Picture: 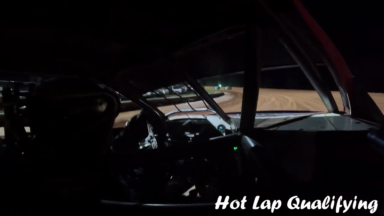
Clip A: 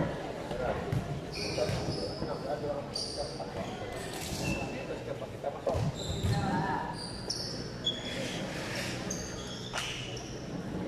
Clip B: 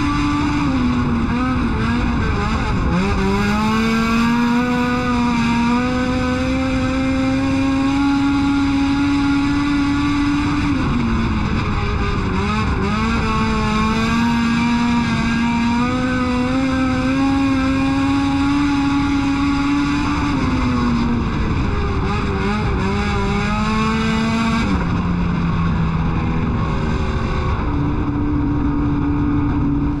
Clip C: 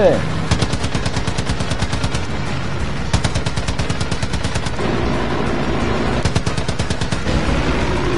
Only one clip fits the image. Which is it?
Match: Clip B